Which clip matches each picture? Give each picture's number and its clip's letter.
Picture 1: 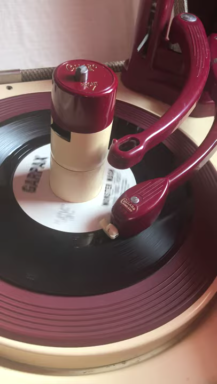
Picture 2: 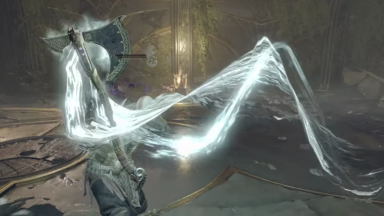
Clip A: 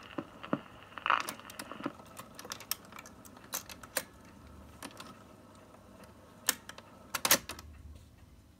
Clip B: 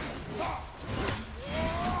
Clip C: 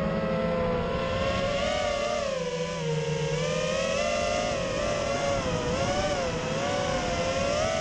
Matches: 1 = A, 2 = B